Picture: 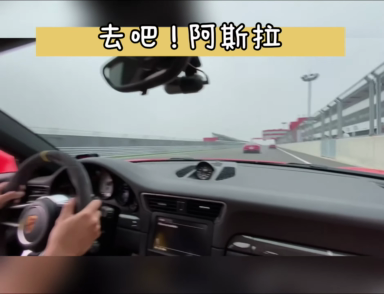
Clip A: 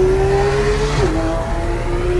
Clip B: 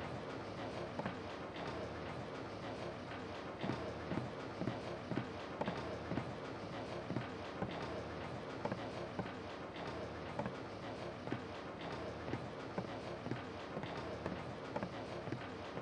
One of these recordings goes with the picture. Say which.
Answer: A